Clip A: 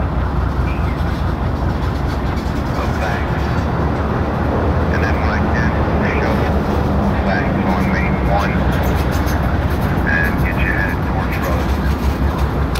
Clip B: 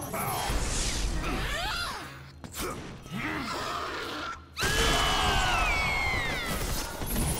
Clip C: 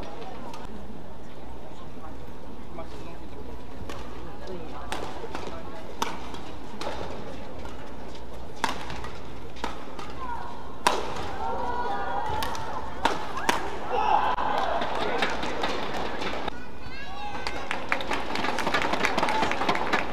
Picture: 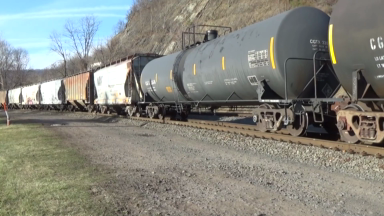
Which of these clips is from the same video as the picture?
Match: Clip A